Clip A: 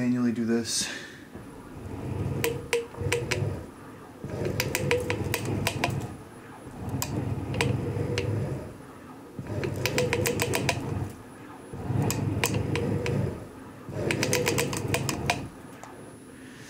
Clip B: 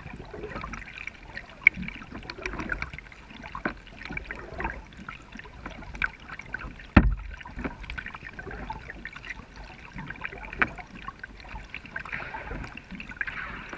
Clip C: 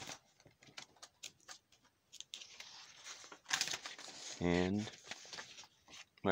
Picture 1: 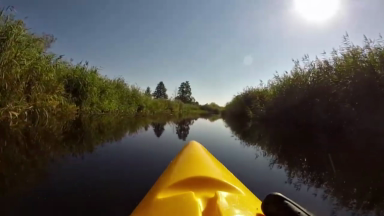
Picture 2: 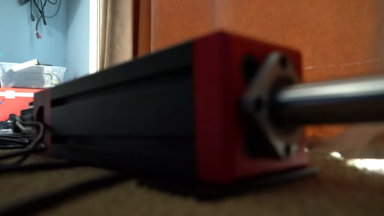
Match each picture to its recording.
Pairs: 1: B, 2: A